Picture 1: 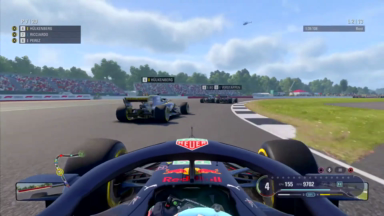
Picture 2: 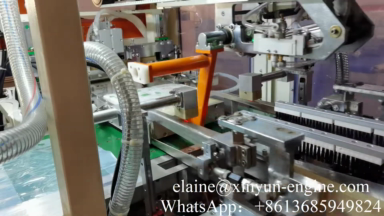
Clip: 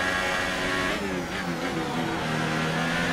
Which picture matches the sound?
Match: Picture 1